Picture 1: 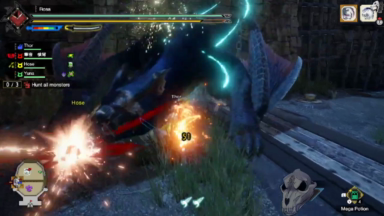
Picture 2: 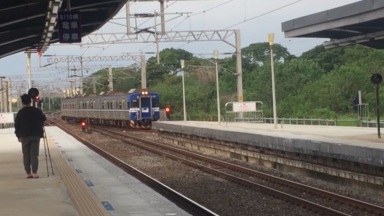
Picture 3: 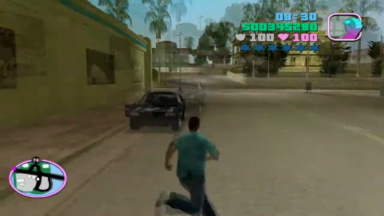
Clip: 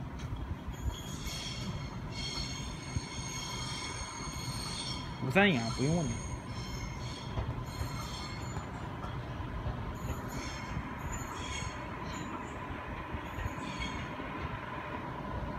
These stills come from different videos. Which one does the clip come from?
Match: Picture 2